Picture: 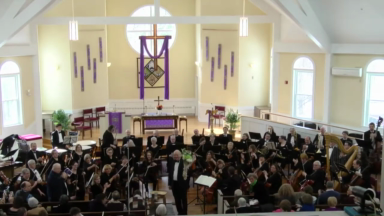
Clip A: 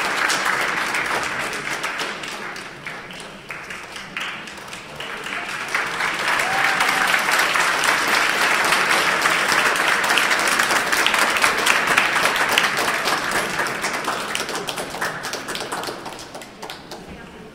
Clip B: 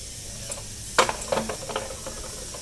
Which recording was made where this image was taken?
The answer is A